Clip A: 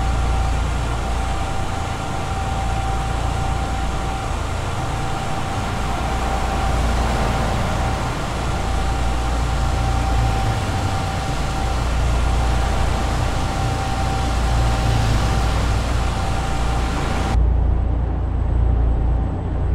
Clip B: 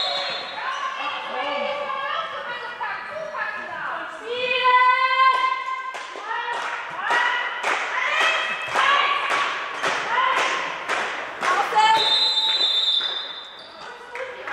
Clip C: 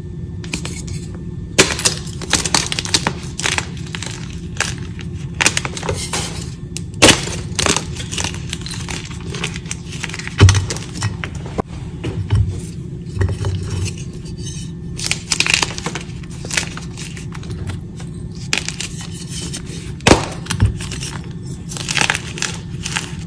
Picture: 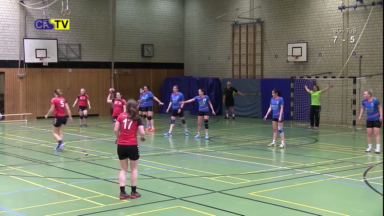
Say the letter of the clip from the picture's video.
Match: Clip B